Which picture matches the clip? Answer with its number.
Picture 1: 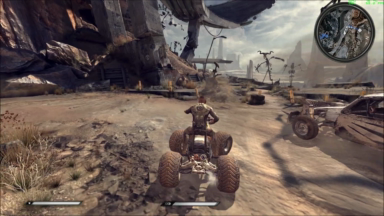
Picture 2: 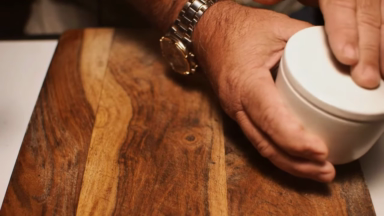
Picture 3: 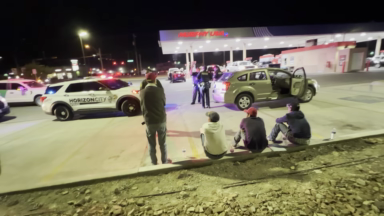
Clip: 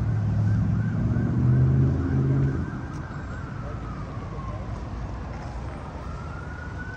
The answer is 3